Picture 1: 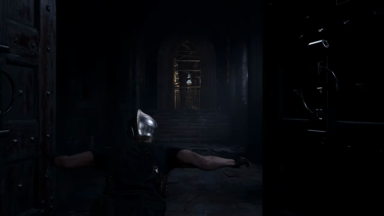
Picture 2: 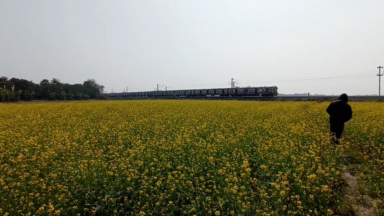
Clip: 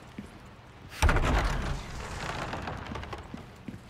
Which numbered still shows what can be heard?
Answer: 1